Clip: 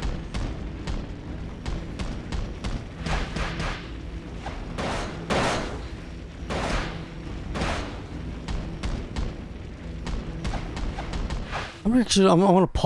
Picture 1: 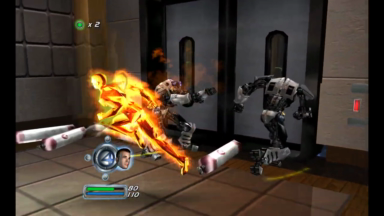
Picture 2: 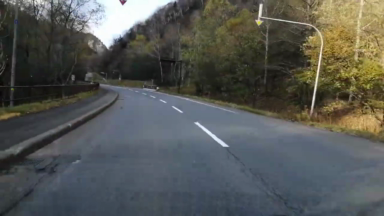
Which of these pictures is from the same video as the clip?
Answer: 1